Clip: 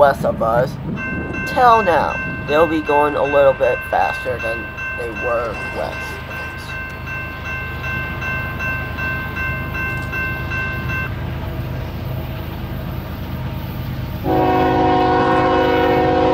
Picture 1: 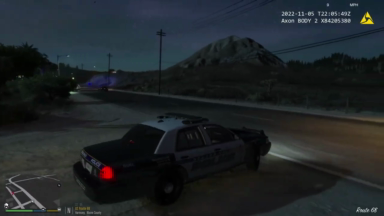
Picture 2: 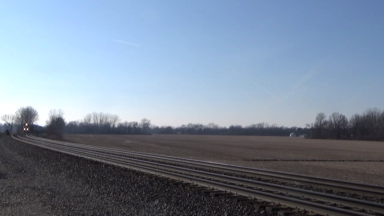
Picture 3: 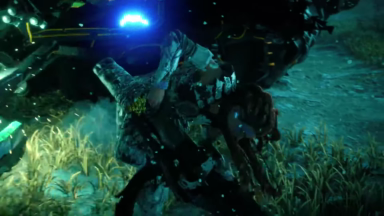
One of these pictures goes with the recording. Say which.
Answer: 2